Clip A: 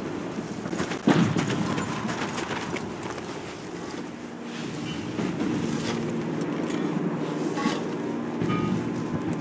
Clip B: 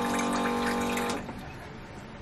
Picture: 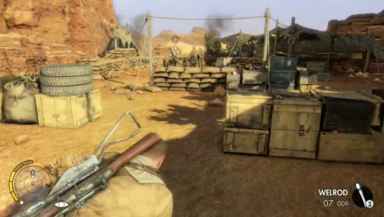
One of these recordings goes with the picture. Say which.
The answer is A